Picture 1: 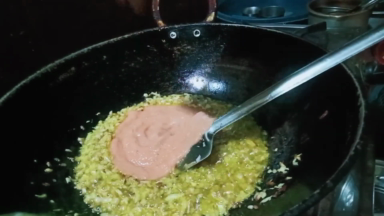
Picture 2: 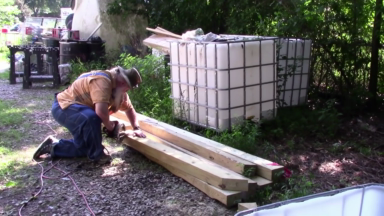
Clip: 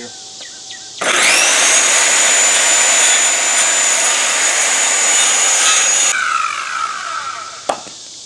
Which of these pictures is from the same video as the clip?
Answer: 2